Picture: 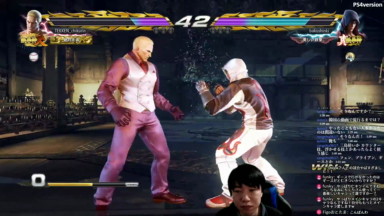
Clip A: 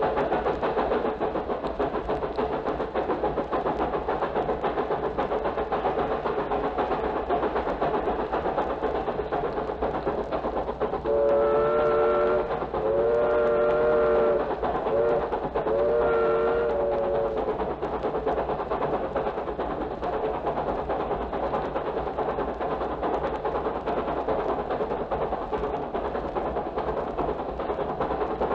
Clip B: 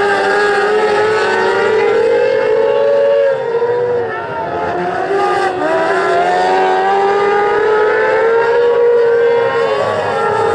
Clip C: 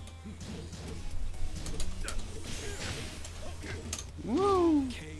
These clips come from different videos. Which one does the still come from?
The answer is C